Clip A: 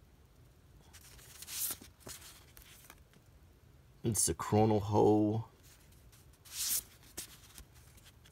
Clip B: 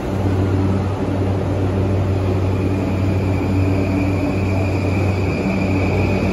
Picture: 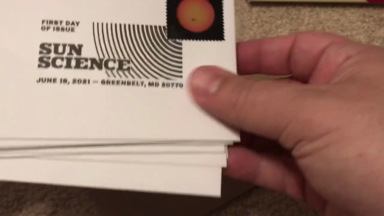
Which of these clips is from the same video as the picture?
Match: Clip A